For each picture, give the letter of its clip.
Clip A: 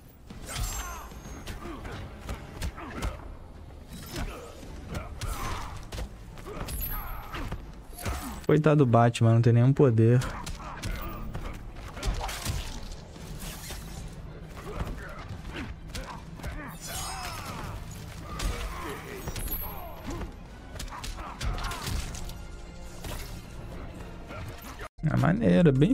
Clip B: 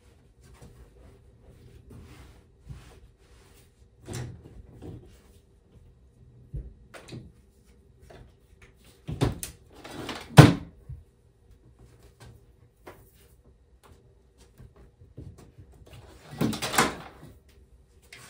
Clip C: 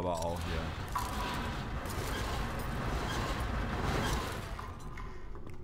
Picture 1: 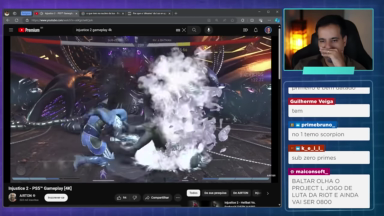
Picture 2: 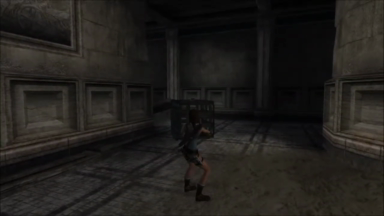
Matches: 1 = A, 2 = C